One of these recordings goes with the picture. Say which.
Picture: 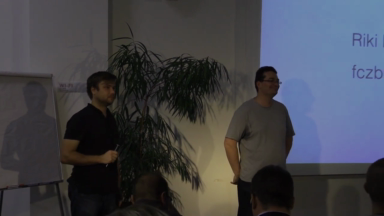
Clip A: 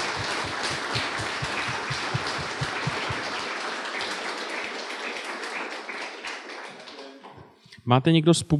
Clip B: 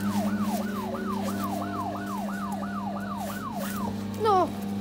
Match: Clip A